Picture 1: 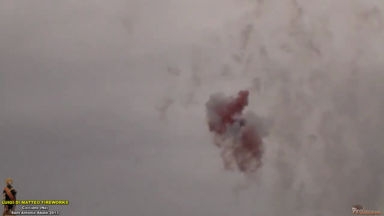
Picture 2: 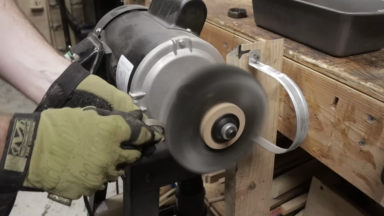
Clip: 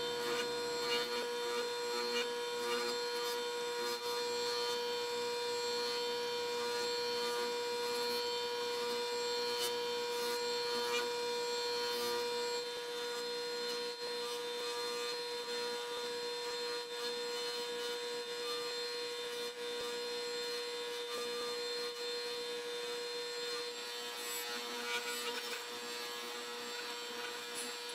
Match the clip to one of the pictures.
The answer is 2